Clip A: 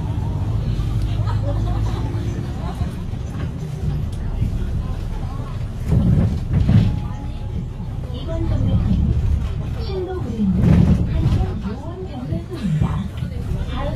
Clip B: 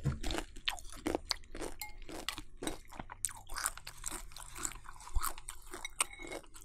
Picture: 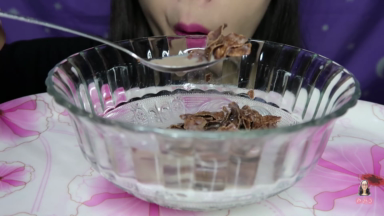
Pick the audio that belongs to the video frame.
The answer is B